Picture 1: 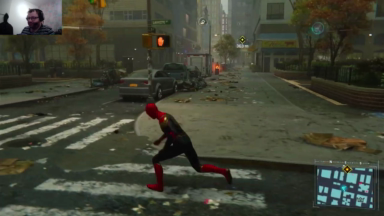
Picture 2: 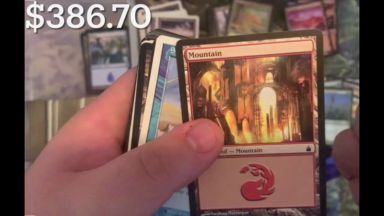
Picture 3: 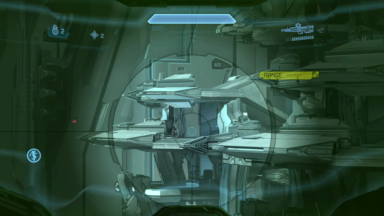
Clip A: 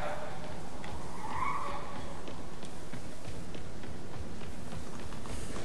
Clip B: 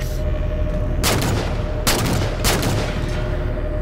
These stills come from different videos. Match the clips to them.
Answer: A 1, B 3